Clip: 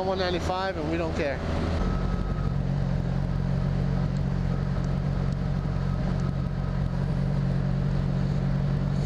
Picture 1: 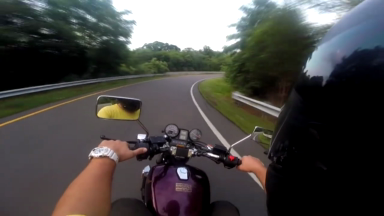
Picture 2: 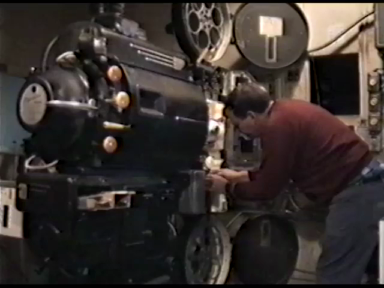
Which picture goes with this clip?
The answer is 1